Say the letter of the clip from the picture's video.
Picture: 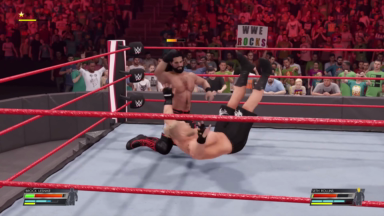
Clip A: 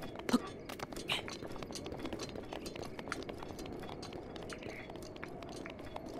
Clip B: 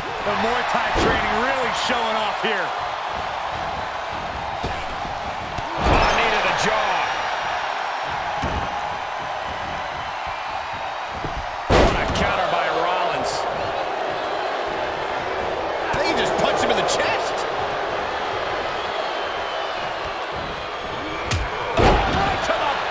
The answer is B